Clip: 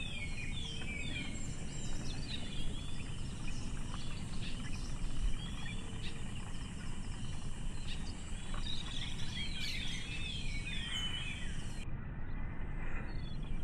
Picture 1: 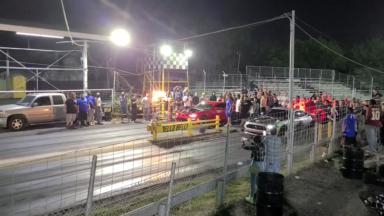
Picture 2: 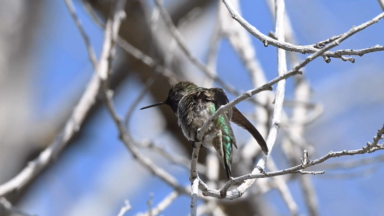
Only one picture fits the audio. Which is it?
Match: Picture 2